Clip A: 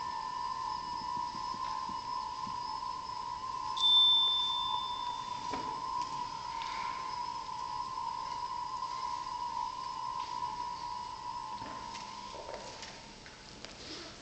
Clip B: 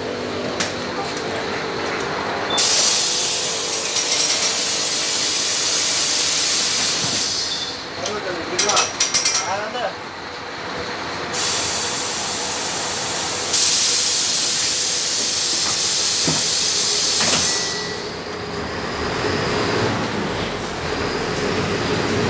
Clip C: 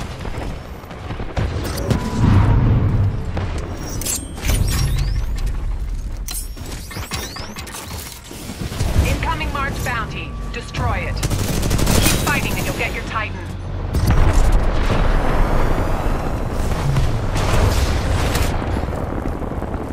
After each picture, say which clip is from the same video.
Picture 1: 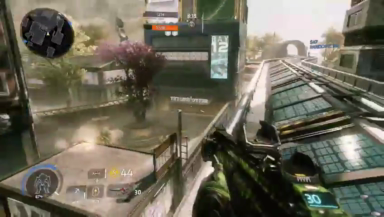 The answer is C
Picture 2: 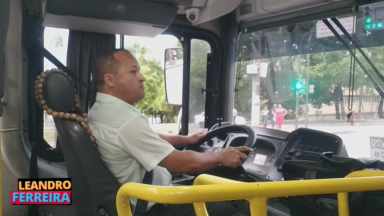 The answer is B